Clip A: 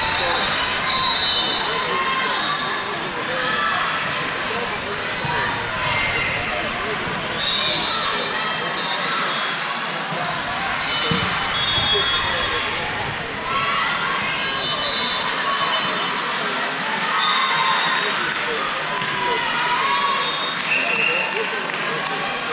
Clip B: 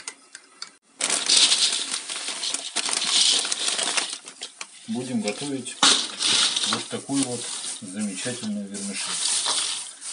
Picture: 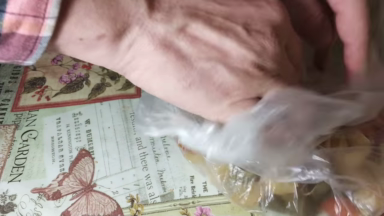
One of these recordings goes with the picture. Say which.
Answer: B